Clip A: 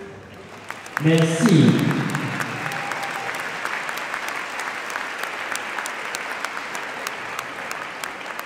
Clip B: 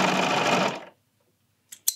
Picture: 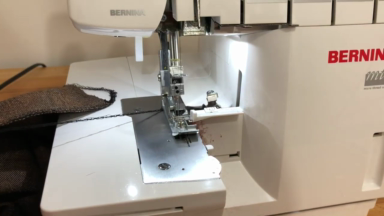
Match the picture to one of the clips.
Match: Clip B